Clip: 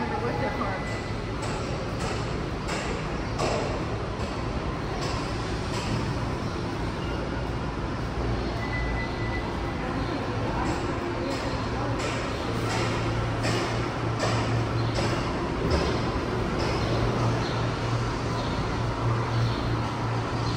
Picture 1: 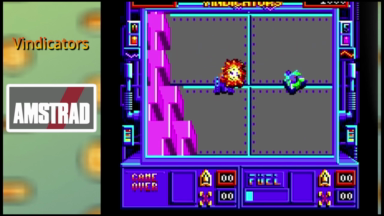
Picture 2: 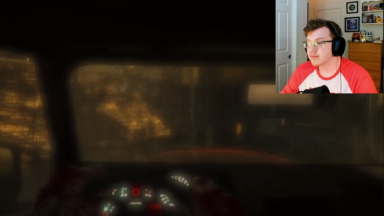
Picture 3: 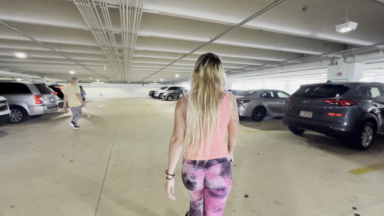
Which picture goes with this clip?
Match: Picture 3